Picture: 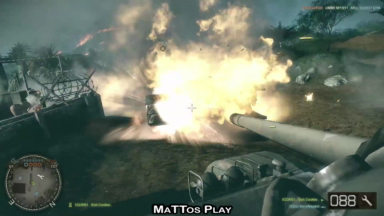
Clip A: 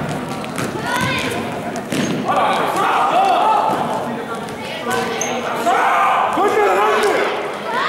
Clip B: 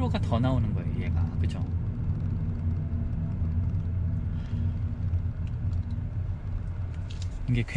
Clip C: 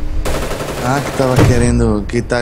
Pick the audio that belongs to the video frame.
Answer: C